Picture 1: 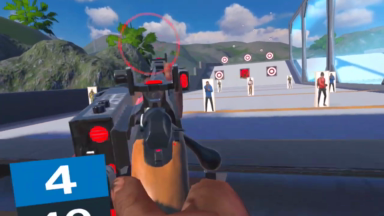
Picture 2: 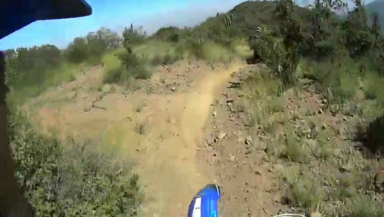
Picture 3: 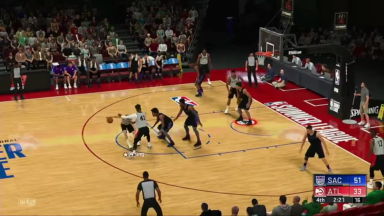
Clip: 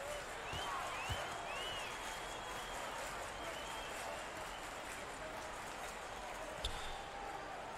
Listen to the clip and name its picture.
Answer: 3